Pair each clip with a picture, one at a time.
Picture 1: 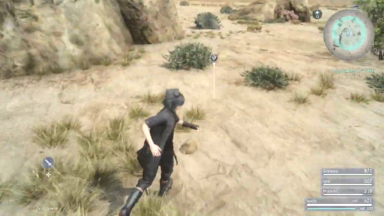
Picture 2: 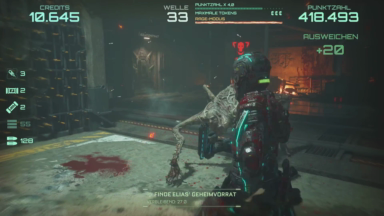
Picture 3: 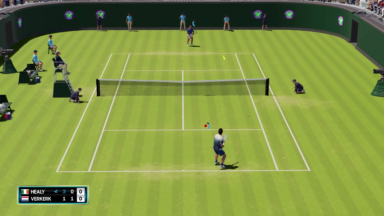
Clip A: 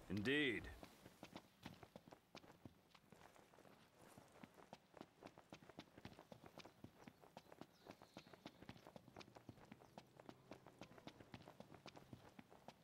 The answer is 1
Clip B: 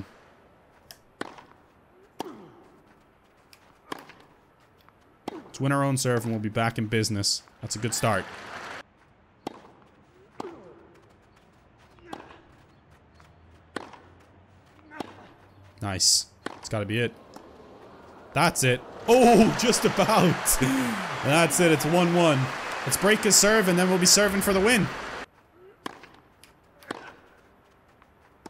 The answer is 3